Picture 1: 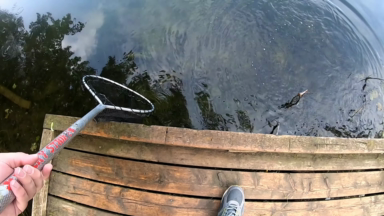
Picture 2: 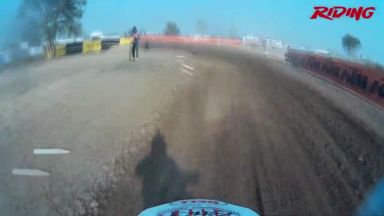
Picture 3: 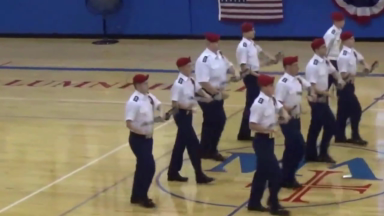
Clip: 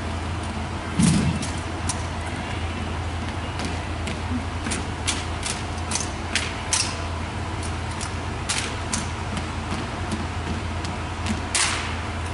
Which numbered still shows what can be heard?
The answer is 3